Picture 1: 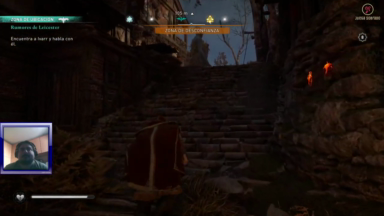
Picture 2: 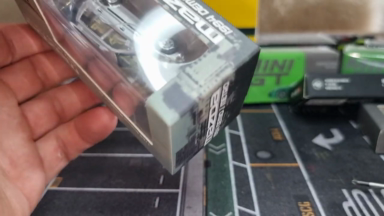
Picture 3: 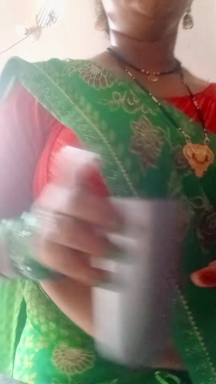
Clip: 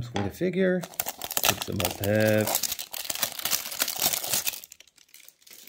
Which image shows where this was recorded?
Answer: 2